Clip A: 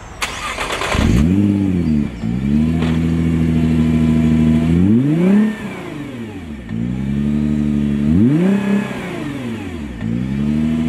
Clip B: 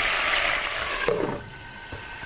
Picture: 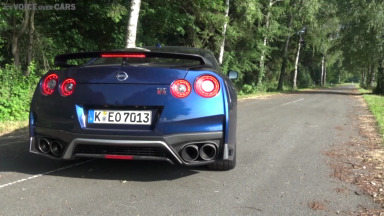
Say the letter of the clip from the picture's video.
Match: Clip A